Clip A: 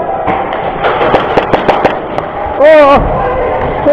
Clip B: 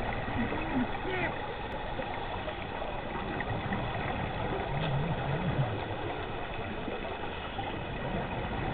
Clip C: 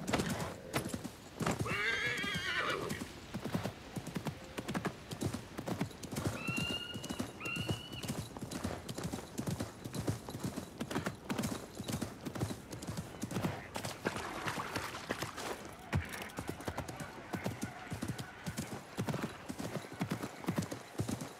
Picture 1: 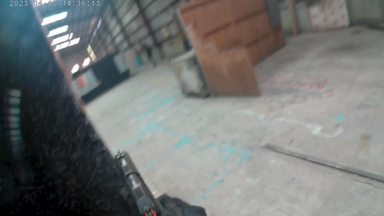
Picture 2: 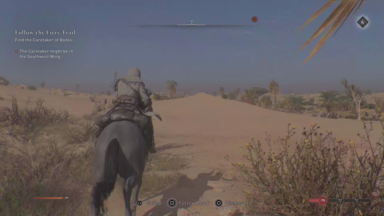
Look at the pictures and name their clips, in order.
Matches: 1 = A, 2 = C